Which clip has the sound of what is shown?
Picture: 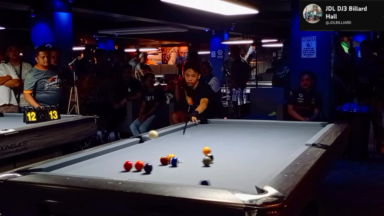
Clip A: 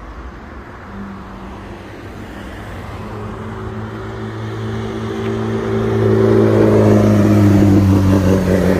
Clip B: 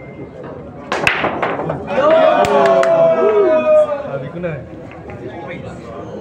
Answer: B